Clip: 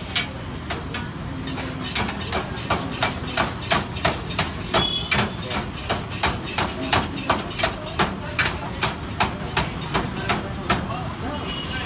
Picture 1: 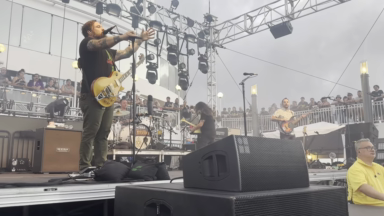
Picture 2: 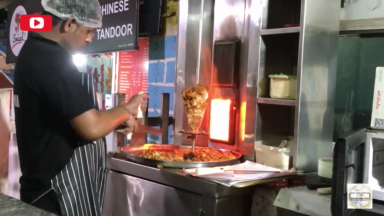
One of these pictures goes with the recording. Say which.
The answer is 2